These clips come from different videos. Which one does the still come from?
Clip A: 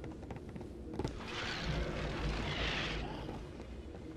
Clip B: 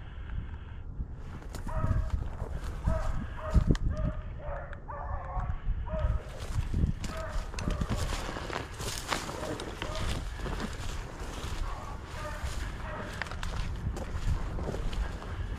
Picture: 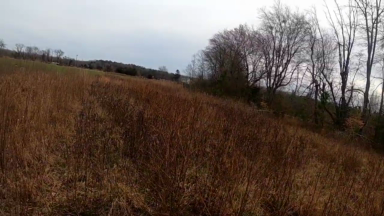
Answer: B